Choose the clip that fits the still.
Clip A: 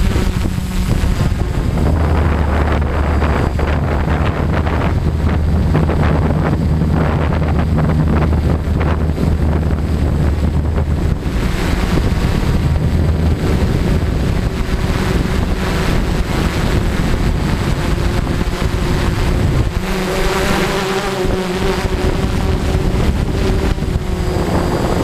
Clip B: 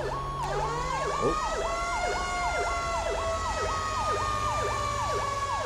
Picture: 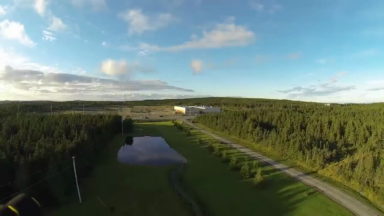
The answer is A